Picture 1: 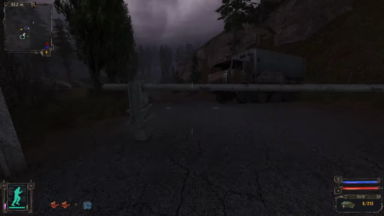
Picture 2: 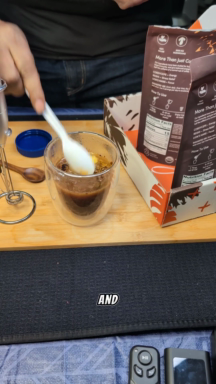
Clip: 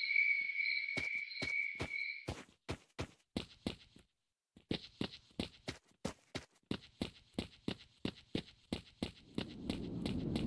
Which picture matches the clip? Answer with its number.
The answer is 1